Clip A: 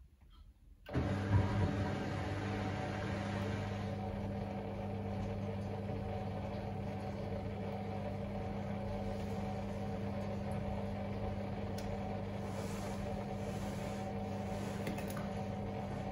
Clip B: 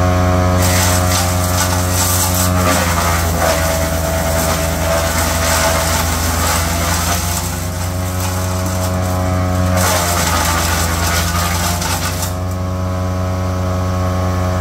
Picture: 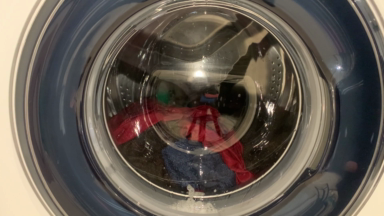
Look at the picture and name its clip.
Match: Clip A